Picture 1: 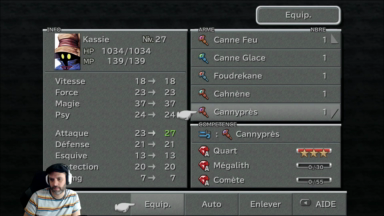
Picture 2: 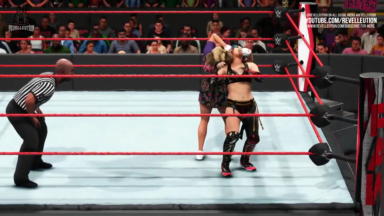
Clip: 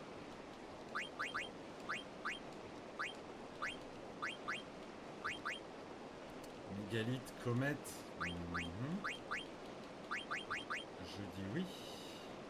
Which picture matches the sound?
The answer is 1